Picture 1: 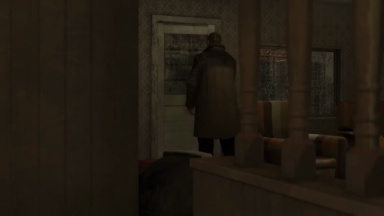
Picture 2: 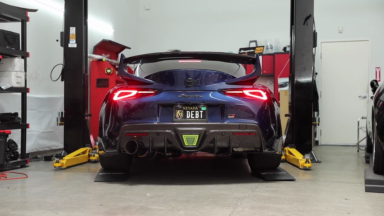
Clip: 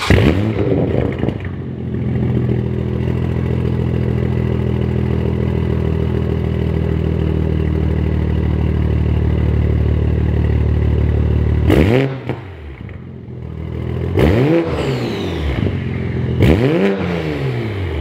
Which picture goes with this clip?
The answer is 2